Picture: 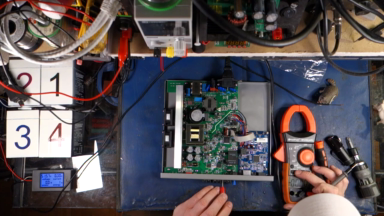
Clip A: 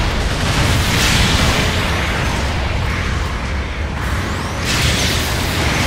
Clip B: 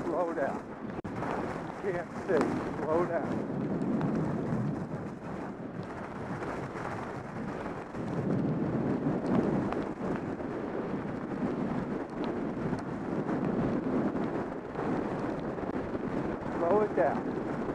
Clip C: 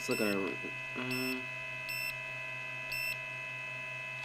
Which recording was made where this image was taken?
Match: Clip C